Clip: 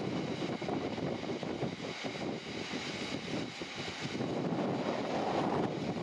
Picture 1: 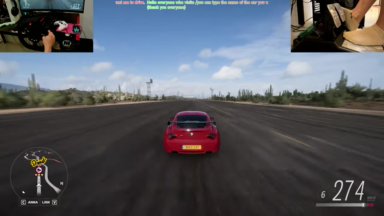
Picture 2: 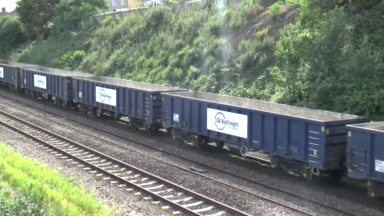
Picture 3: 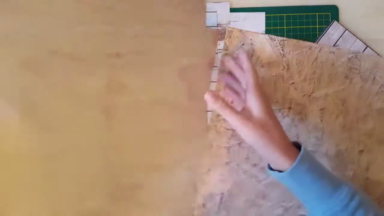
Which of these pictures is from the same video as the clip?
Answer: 2